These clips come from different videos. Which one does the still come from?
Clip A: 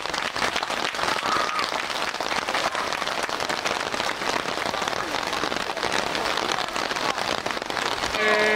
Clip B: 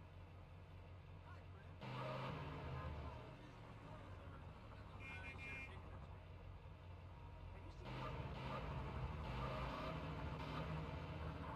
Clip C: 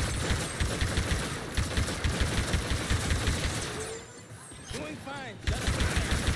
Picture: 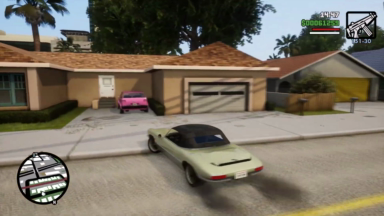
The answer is B